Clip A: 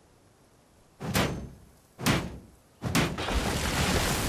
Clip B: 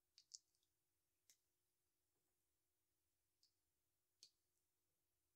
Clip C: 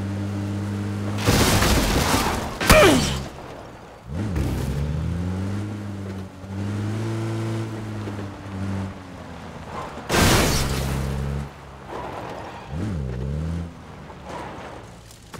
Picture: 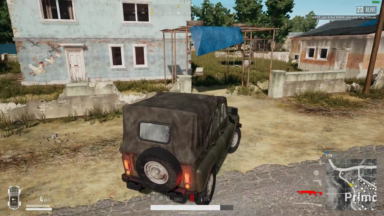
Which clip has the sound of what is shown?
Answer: C